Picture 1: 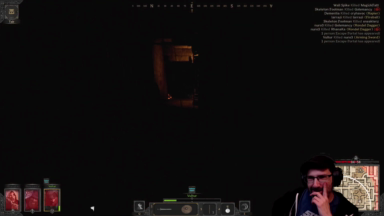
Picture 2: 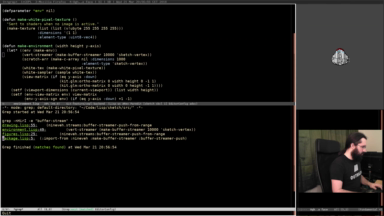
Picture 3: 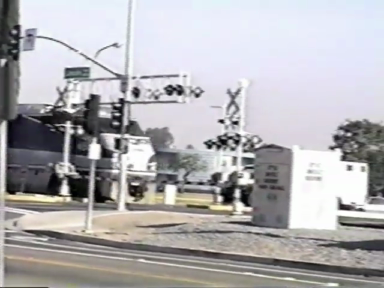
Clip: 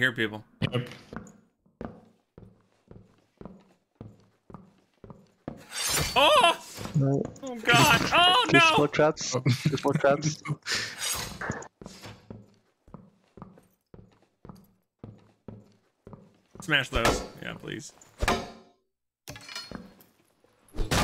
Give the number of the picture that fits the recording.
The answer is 1